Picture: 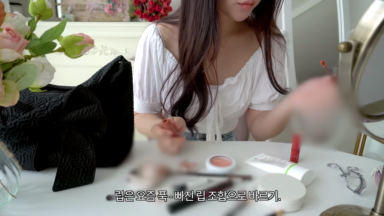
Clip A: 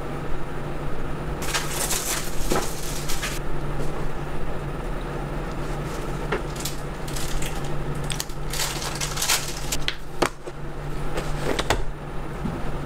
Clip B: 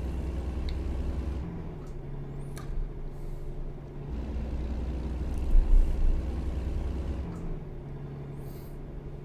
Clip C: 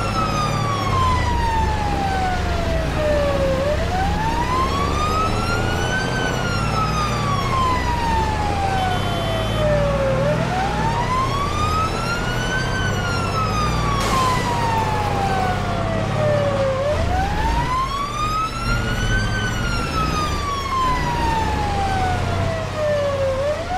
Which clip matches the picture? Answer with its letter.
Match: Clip A